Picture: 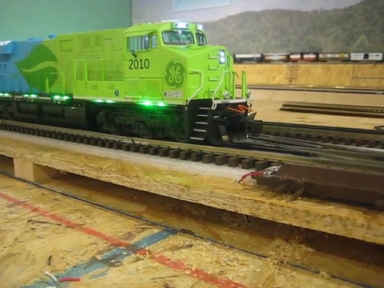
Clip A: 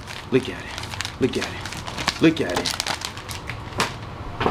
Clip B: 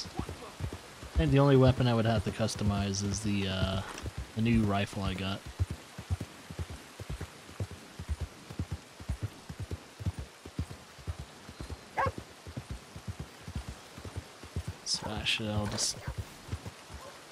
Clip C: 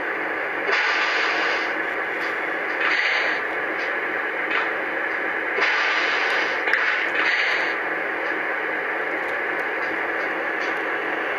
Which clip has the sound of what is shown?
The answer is C